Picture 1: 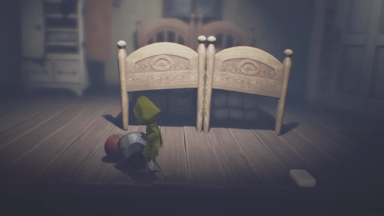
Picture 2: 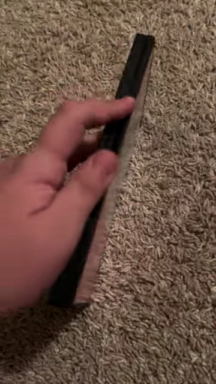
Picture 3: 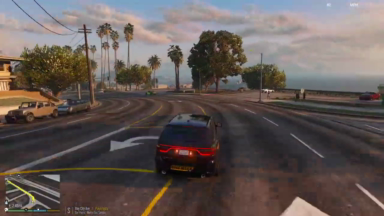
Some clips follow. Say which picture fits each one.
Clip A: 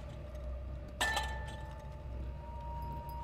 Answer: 1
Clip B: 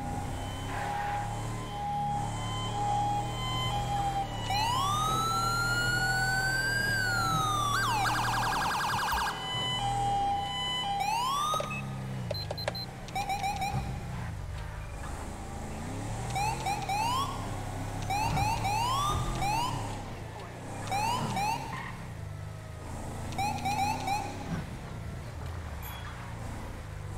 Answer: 3